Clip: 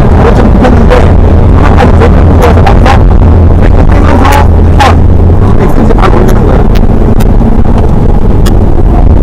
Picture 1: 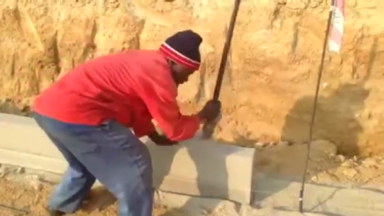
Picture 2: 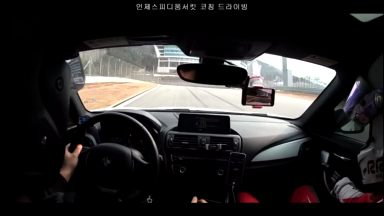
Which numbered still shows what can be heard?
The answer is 2